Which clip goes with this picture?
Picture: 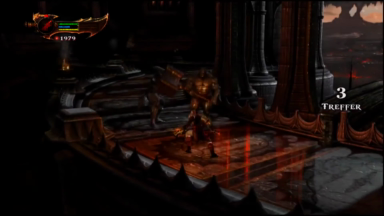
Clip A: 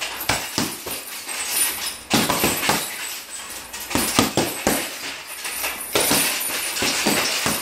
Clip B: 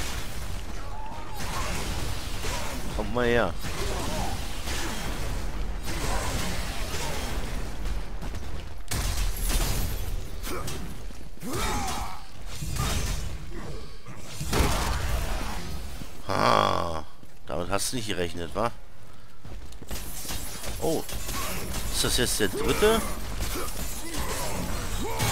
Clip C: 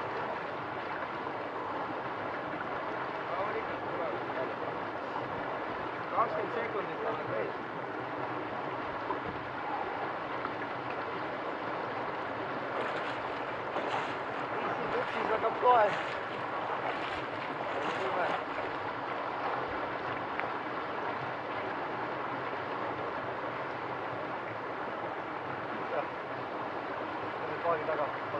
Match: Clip B